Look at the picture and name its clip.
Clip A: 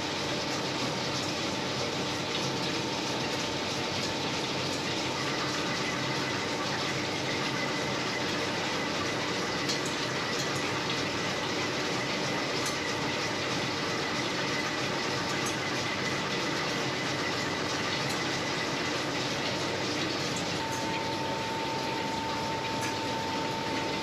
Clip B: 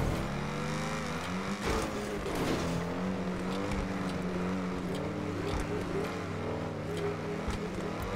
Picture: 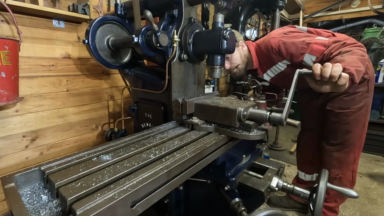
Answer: A